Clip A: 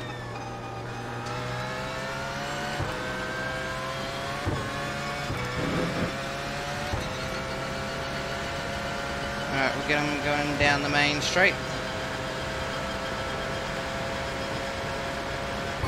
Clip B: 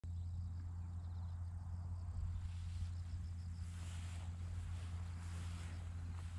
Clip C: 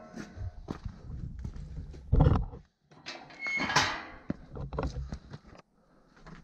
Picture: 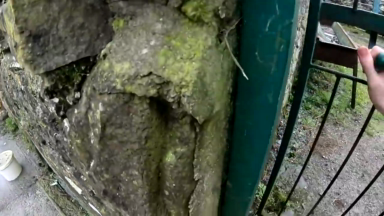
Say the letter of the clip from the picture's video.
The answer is C